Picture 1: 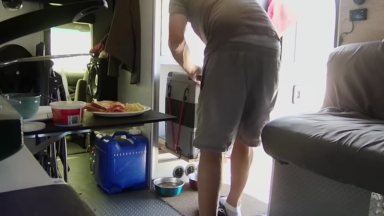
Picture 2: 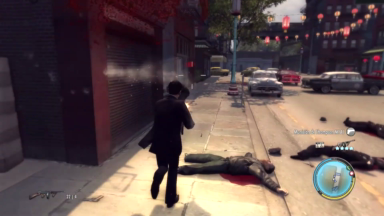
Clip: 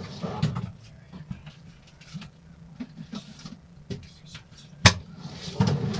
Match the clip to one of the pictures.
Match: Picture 1